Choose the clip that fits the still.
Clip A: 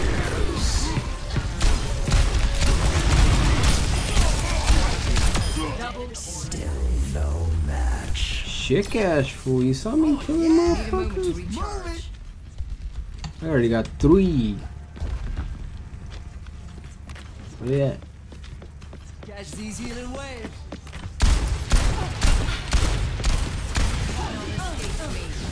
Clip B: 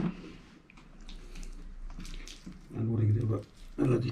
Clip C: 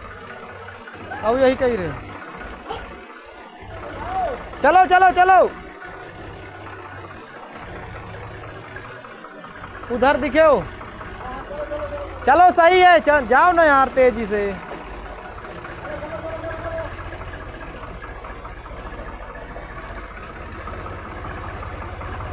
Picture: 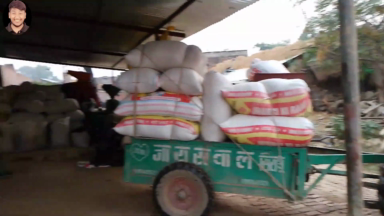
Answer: C